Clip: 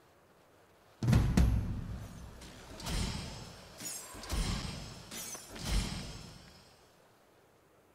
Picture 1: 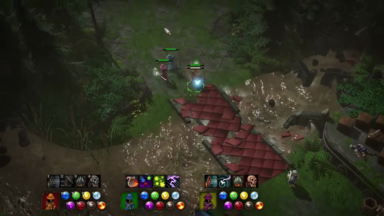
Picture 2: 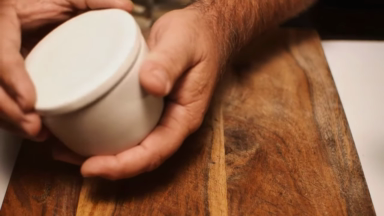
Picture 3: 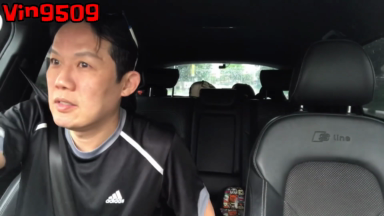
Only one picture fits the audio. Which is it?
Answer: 1